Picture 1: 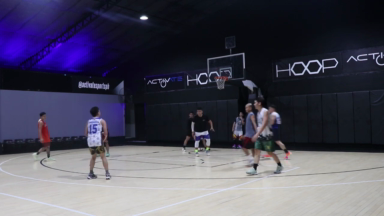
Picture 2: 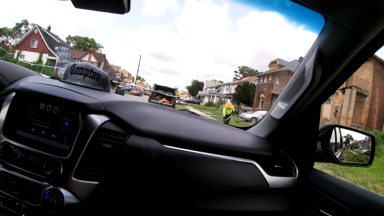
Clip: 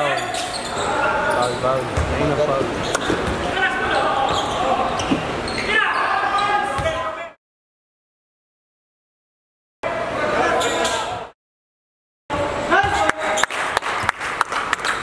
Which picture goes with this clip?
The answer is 1